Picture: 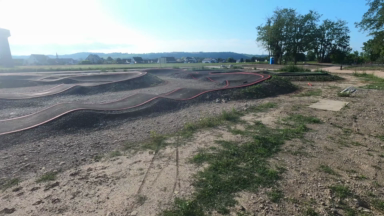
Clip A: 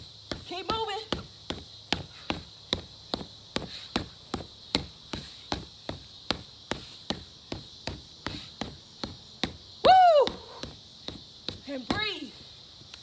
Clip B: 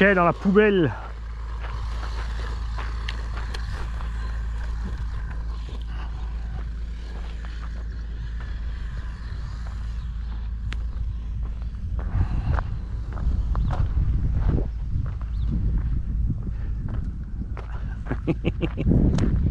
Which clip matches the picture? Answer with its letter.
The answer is B